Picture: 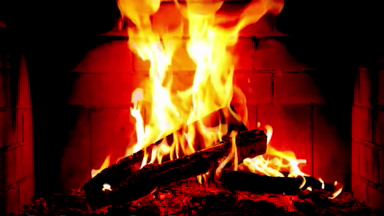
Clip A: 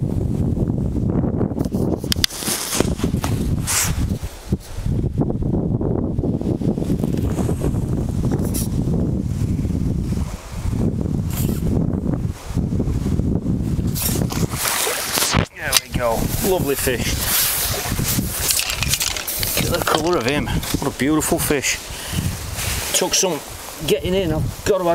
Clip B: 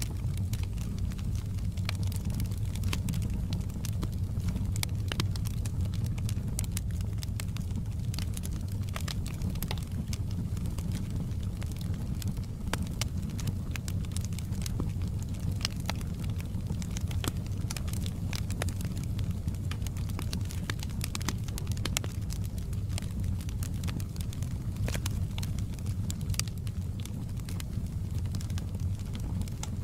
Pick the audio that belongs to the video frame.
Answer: B